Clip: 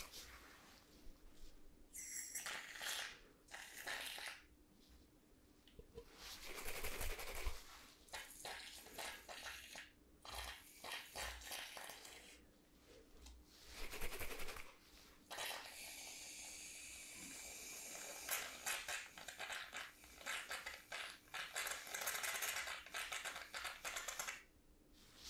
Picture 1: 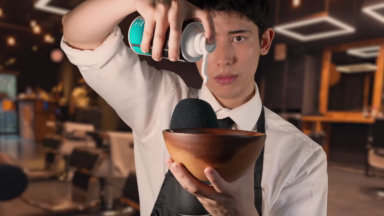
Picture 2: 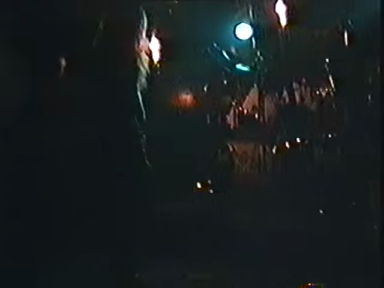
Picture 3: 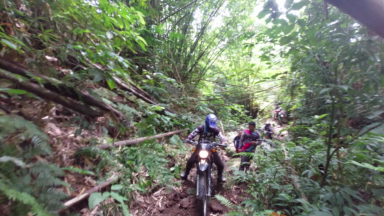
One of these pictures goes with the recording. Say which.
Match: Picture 1